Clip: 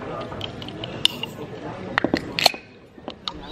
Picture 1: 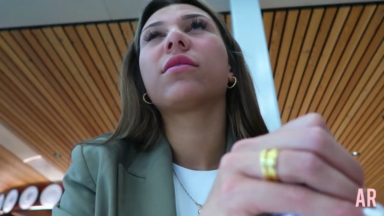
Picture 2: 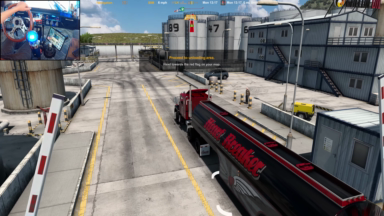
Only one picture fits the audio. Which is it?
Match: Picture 1